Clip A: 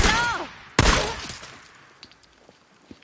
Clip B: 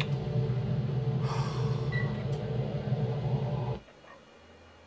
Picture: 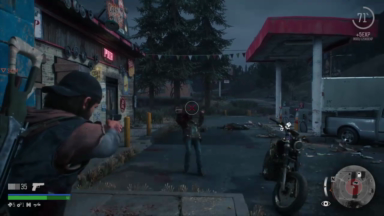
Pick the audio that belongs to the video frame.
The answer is A